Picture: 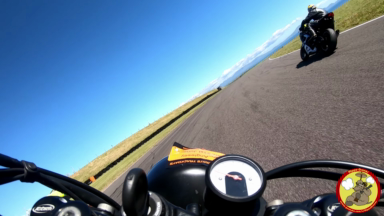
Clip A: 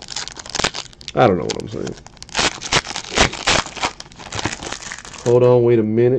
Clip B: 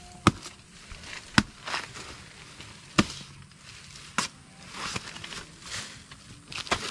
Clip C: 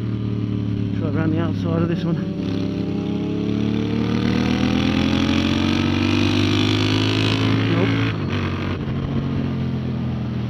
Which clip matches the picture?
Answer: C